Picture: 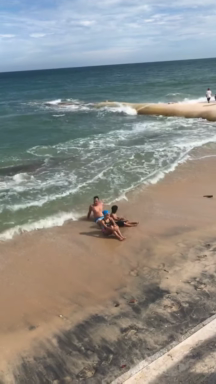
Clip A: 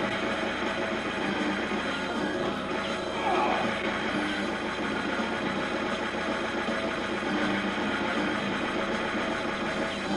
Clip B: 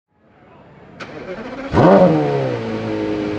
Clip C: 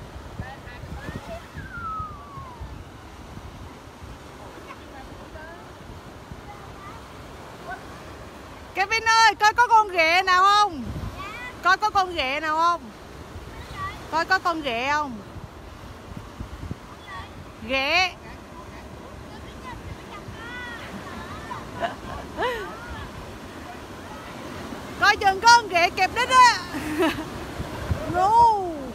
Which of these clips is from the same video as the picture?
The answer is C